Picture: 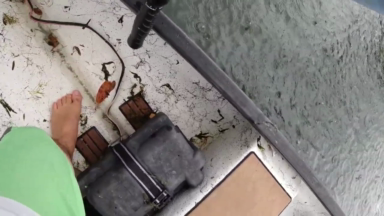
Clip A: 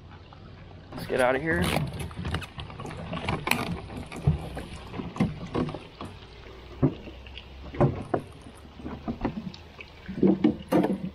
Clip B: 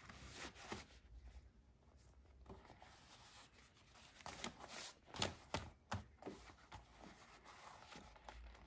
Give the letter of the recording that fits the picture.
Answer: A